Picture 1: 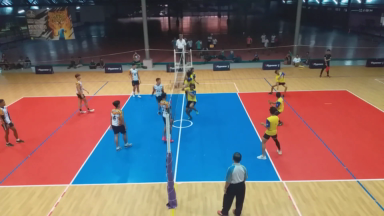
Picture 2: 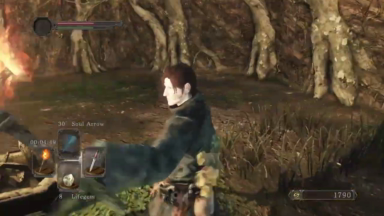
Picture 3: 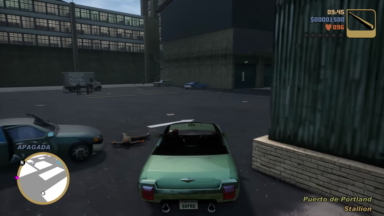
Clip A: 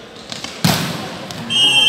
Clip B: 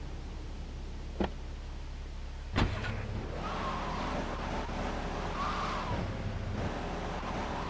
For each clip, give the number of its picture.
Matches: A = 1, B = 3